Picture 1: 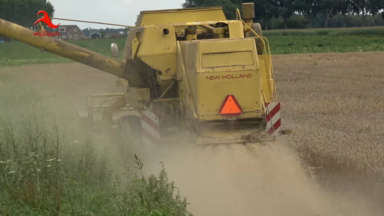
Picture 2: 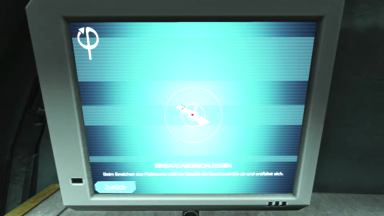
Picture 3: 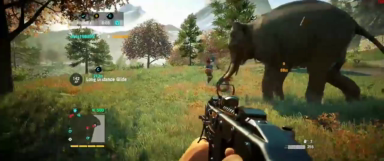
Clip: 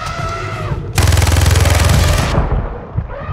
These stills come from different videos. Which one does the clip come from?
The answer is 3